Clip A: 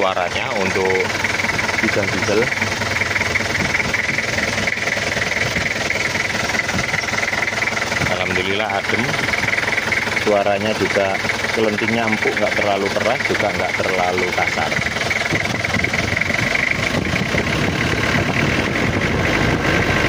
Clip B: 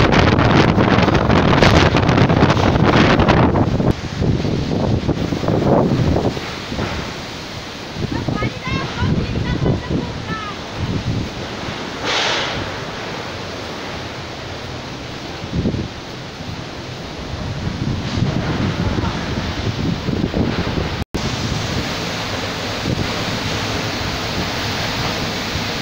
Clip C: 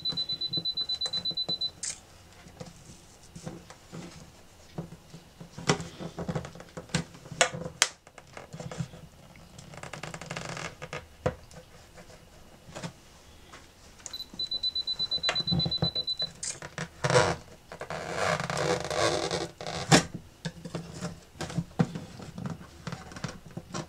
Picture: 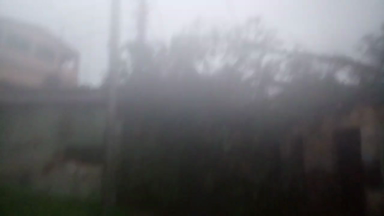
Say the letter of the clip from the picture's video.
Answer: B